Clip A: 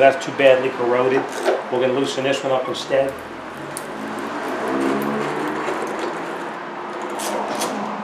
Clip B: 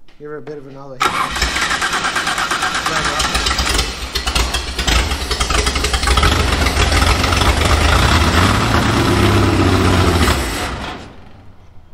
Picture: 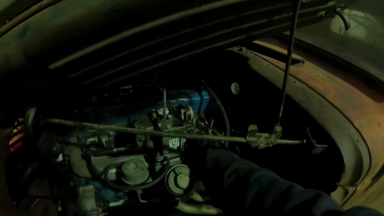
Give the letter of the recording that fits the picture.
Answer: B